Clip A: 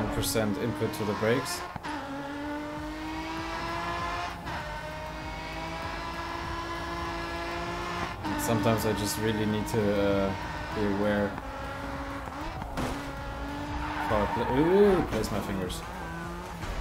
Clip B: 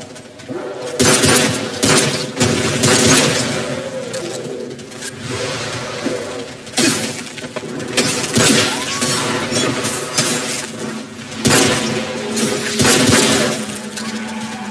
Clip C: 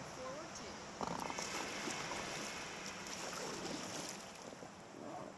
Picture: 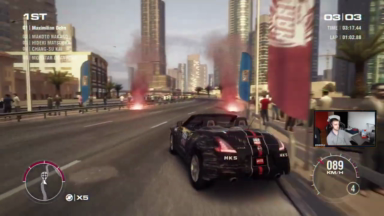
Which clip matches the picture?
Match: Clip A